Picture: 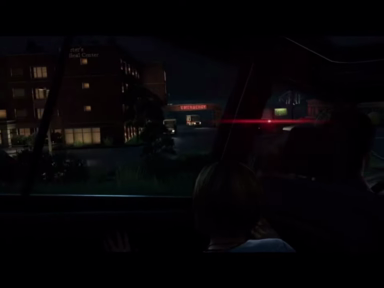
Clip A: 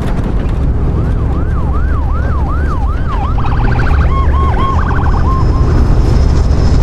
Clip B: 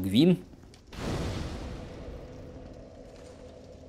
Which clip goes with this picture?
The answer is A